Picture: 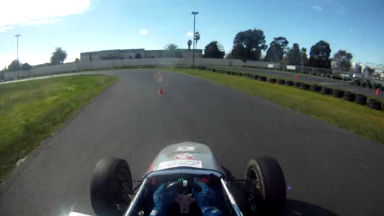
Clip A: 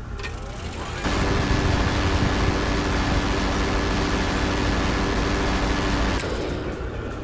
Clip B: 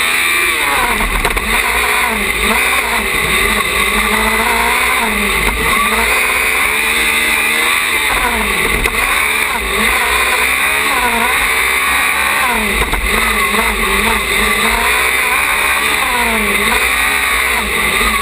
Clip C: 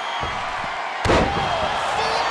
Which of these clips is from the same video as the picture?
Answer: B